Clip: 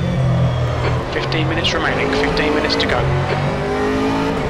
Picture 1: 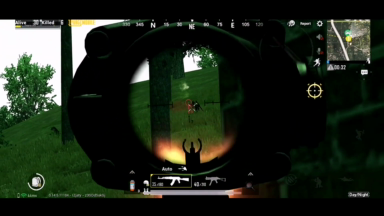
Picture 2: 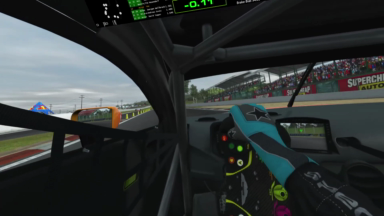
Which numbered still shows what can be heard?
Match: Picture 2